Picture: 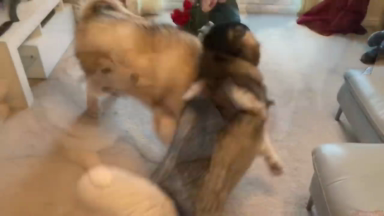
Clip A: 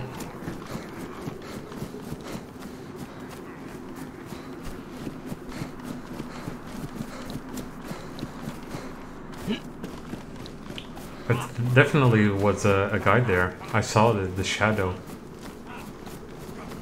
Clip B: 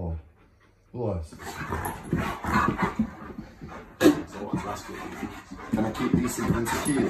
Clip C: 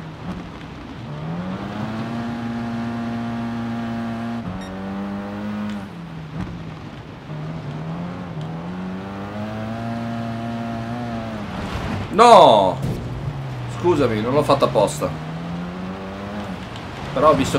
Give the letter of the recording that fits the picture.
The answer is B